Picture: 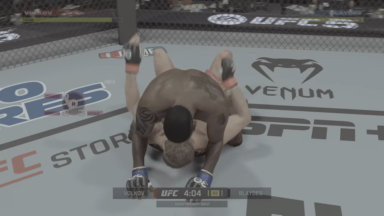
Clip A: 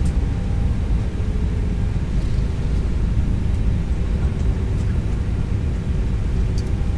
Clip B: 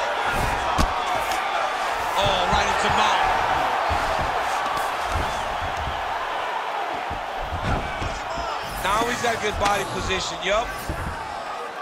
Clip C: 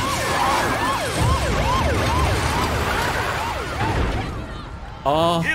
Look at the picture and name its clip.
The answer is B